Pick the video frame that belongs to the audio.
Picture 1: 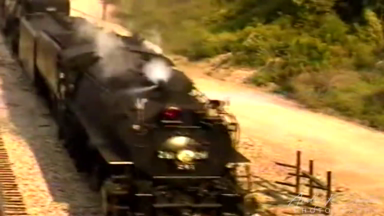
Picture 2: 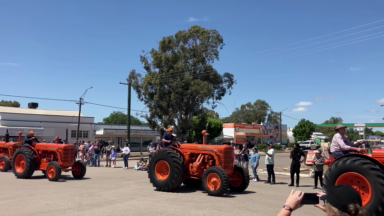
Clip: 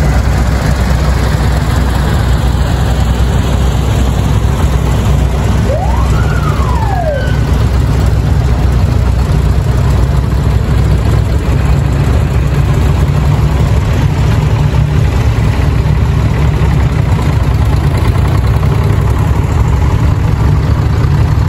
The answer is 2